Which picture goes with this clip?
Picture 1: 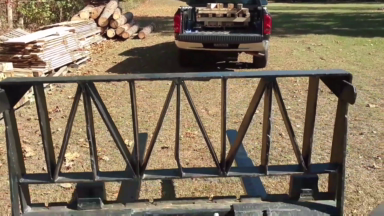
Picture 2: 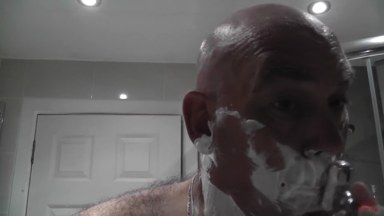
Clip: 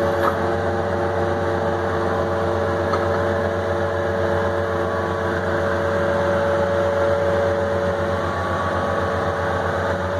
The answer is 1